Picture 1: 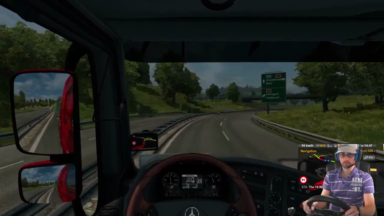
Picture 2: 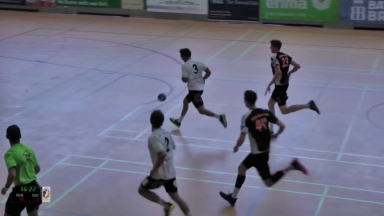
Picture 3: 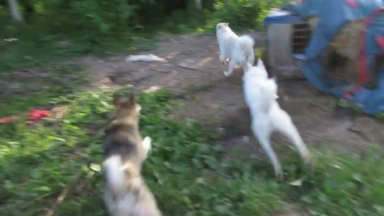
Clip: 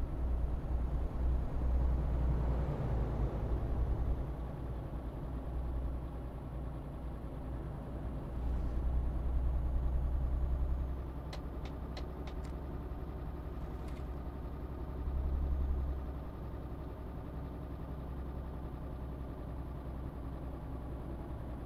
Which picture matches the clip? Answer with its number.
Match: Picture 1